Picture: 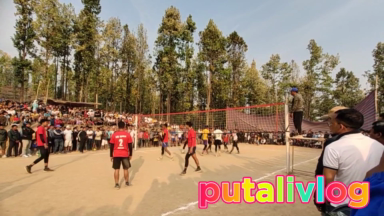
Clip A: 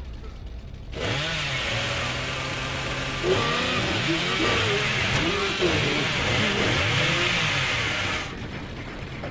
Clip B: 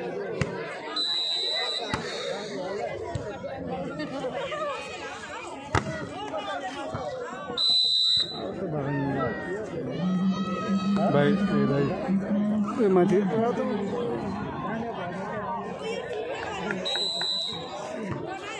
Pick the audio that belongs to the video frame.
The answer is B